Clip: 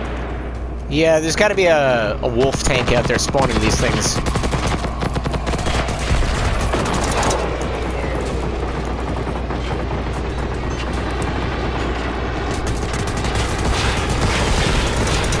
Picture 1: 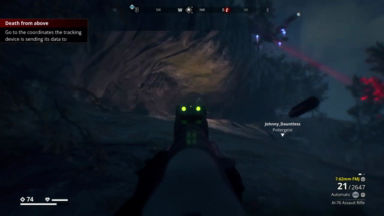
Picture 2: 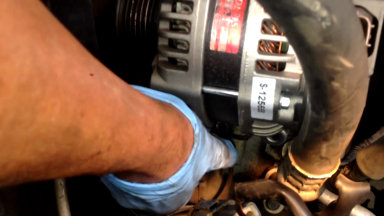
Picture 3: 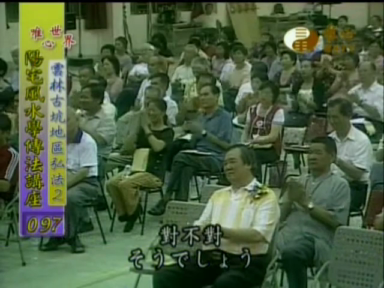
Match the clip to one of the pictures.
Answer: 1